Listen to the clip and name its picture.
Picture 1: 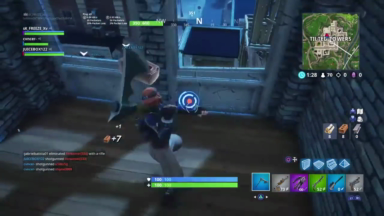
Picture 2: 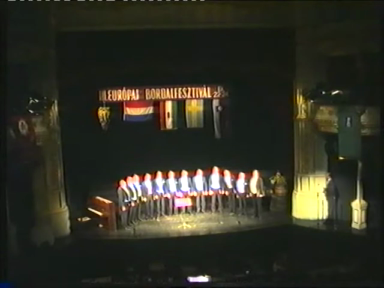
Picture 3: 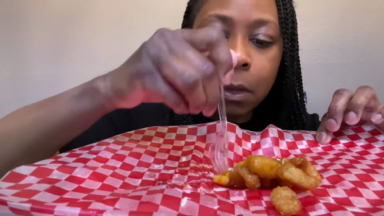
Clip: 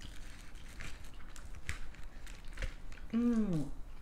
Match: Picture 3